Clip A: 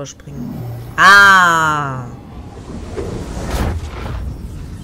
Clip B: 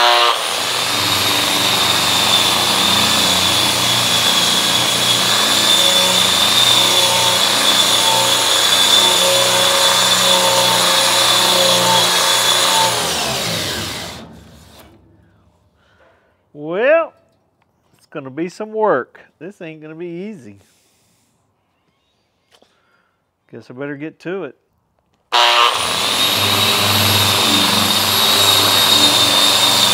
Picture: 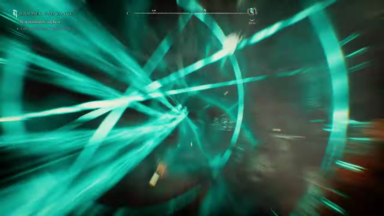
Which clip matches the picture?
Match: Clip A